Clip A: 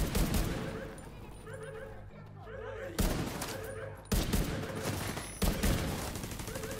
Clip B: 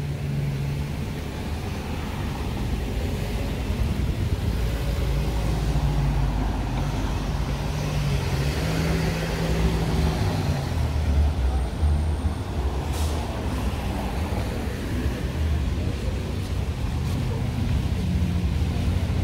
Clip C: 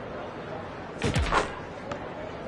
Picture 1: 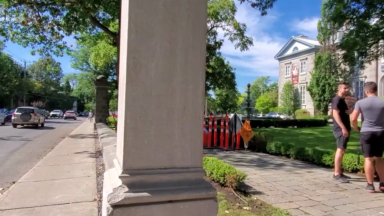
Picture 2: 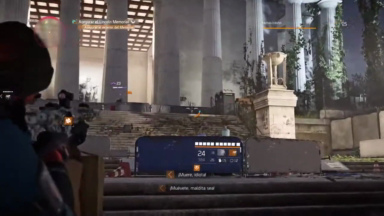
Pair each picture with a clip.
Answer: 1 B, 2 A